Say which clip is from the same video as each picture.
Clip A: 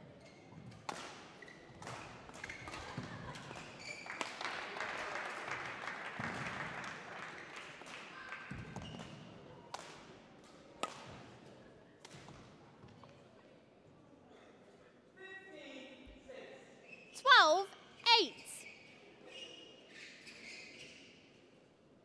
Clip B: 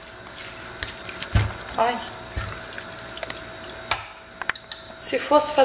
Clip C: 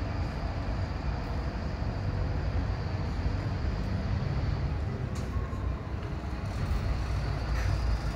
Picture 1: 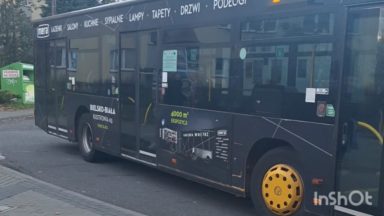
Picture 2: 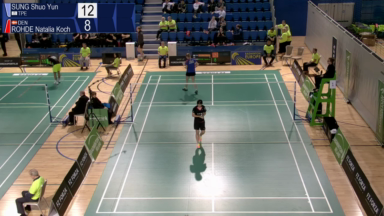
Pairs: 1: C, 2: A